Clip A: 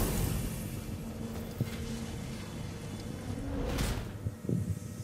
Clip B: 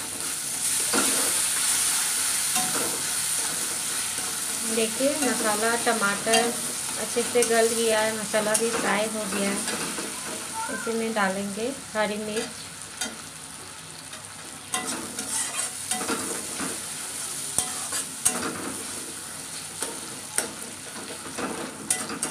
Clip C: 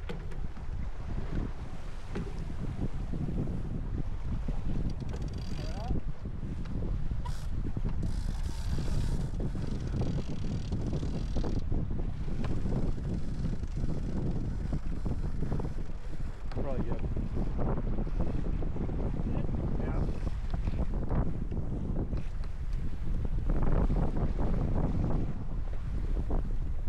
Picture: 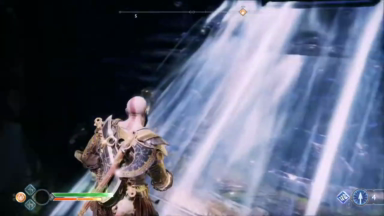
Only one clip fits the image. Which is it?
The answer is A